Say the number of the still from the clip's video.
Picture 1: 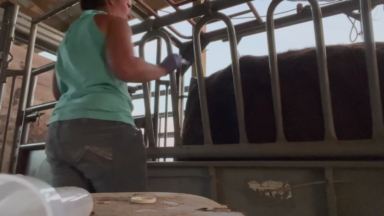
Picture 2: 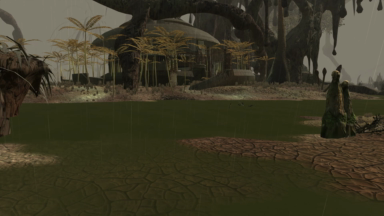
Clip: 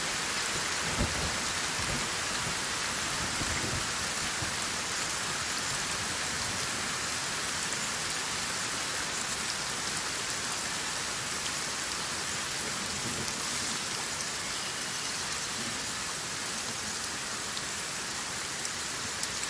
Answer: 2